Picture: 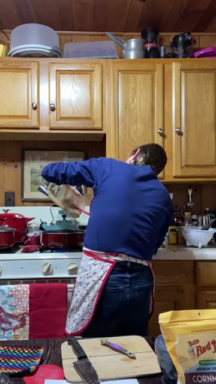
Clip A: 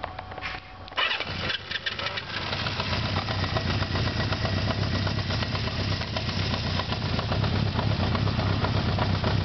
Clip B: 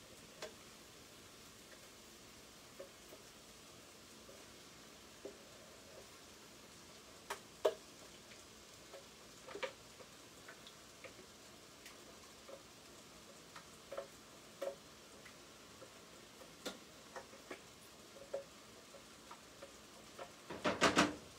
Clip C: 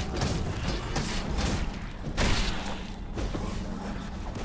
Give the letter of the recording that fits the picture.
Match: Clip B